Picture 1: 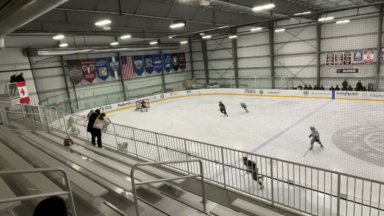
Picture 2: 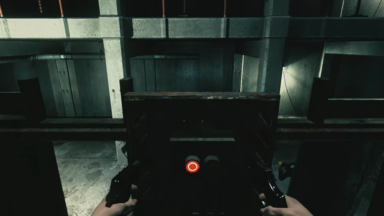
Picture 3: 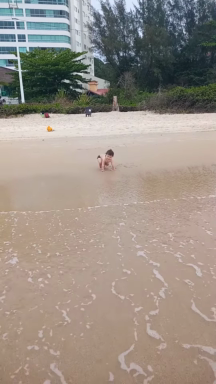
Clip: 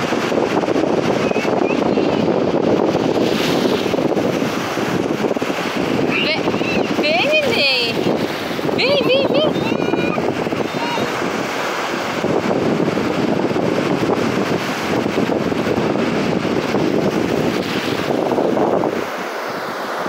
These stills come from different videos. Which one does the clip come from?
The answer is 3